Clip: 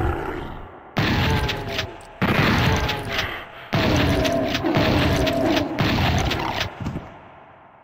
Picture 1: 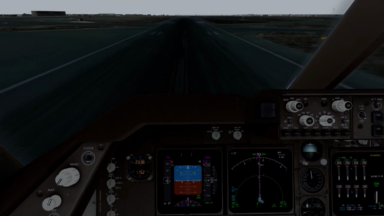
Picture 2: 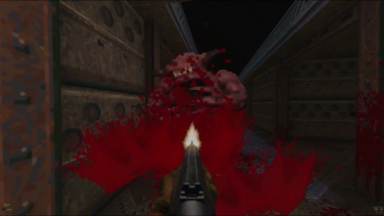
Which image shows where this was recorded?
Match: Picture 2